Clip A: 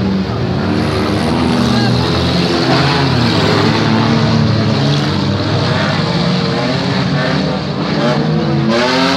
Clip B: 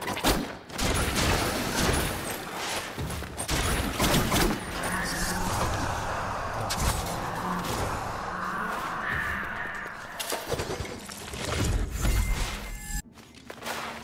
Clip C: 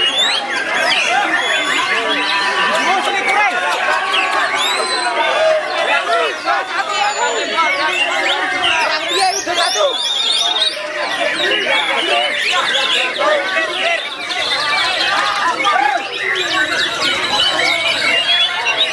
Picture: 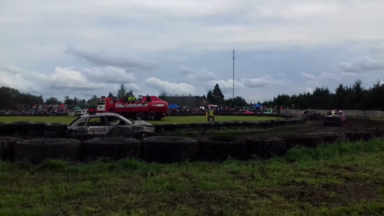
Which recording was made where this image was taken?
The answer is A